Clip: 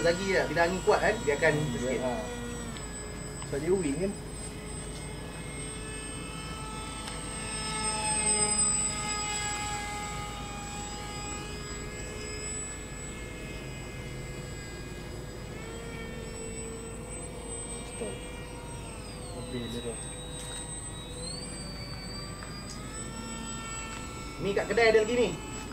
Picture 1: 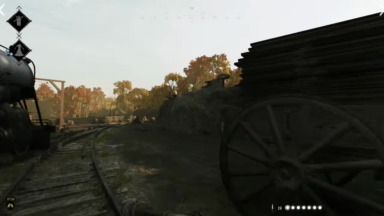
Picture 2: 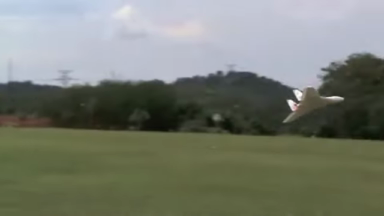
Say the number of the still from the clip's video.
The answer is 2